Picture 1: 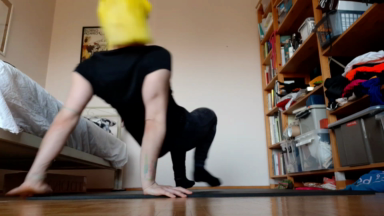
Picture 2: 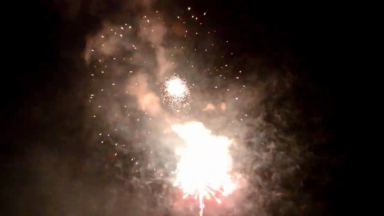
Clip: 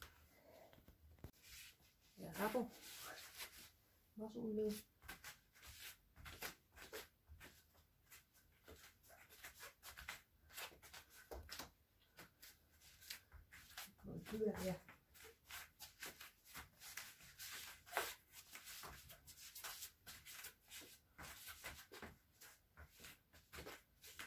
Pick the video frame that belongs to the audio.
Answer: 1